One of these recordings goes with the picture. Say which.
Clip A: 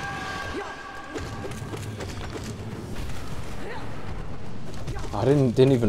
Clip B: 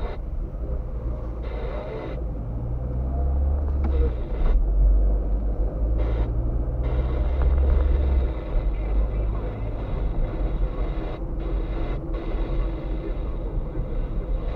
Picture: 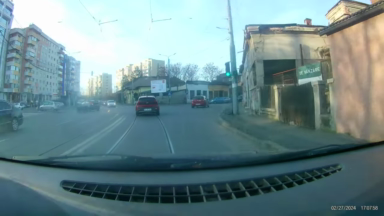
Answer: B